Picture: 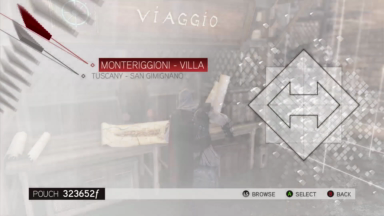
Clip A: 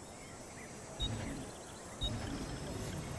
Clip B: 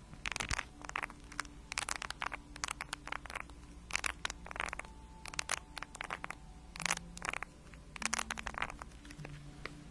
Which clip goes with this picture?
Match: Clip A